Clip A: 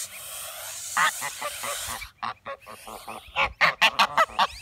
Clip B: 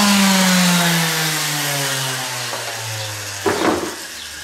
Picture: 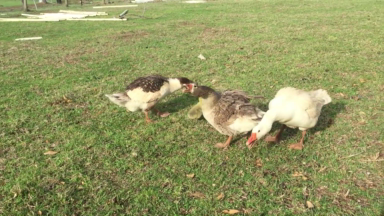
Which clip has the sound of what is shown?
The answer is A